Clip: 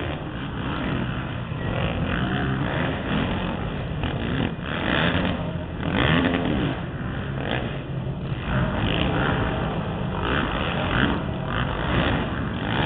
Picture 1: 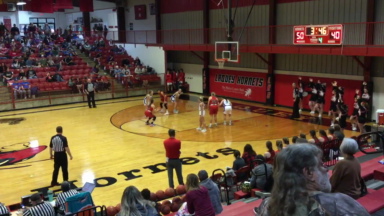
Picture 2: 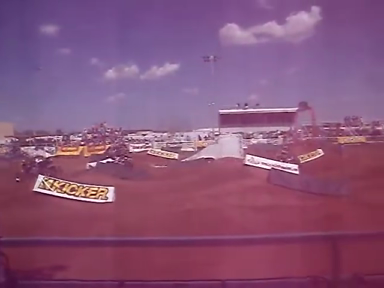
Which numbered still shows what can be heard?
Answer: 2